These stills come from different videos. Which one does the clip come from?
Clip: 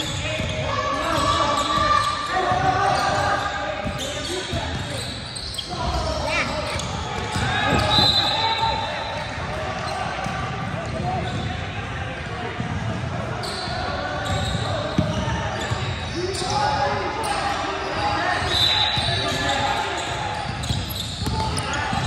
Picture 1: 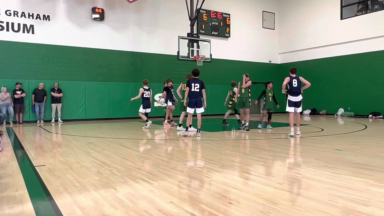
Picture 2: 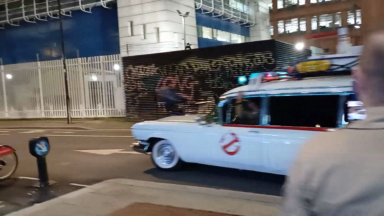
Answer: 1